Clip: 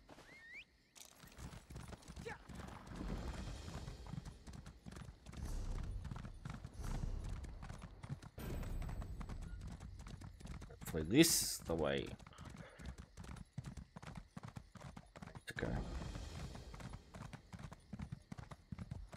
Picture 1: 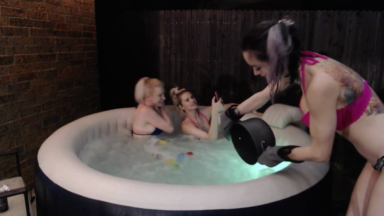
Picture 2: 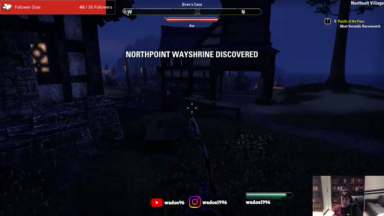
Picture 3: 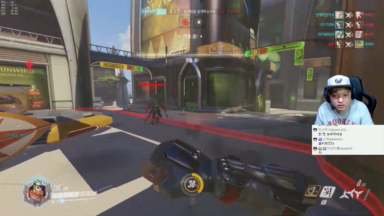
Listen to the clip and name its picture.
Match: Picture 2